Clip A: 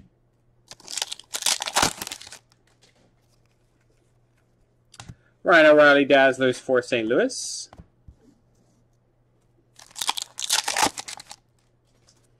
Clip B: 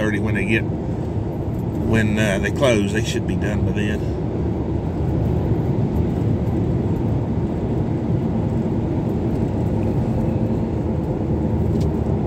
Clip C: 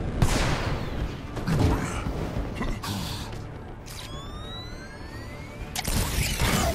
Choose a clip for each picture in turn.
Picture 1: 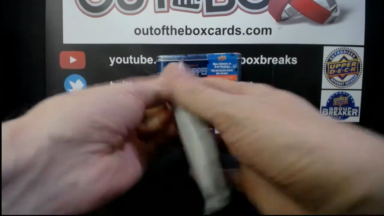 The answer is A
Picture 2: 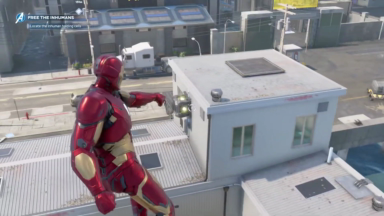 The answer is C